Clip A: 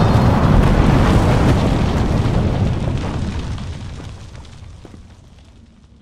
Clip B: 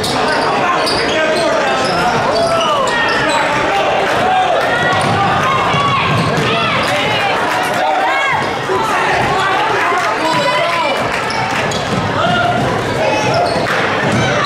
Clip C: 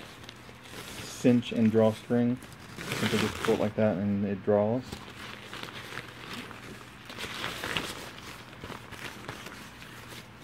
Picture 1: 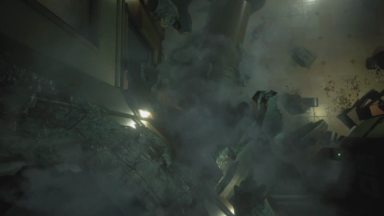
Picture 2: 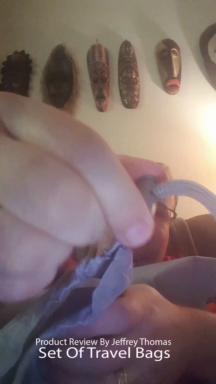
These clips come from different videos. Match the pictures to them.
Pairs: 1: A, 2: C